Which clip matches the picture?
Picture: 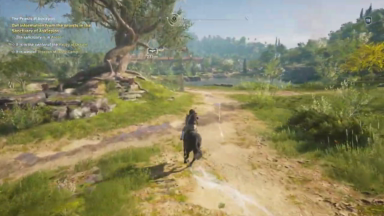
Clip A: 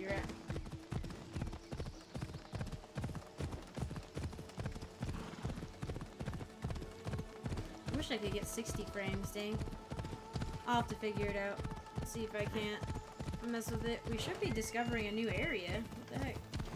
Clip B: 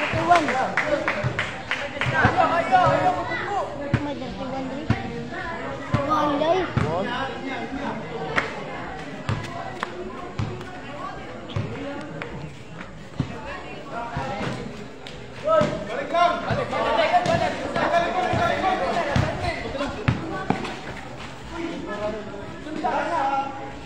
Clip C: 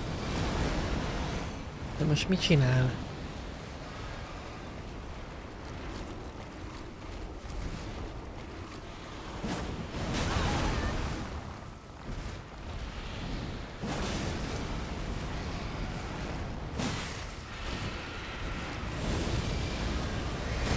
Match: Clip A